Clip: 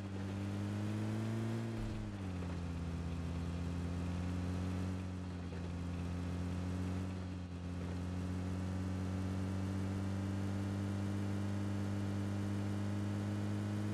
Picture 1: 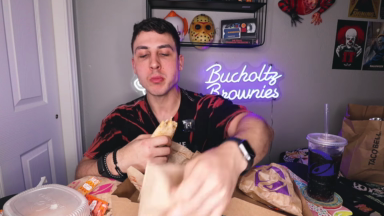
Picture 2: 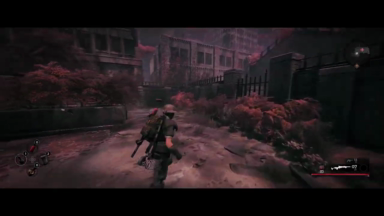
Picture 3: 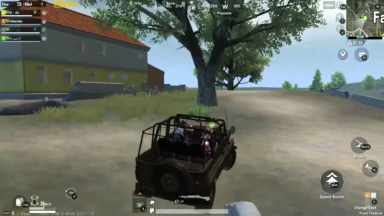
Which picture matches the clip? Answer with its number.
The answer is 3